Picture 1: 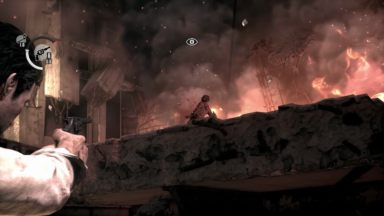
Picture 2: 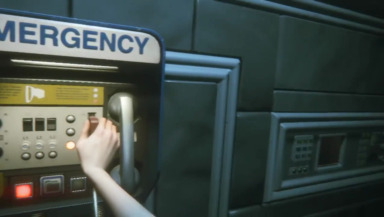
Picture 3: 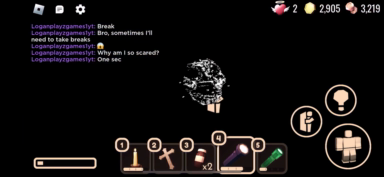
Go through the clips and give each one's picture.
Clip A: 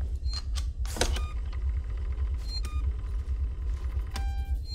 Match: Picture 2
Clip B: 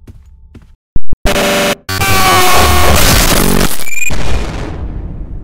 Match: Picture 3